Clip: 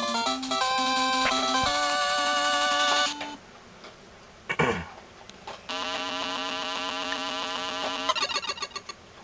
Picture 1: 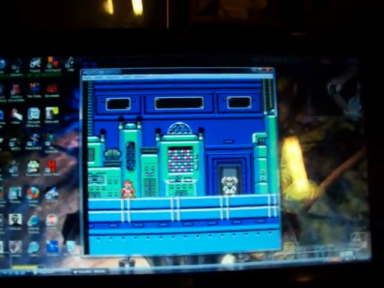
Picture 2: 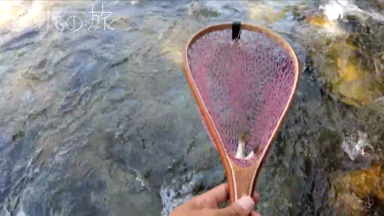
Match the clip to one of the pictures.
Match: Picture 1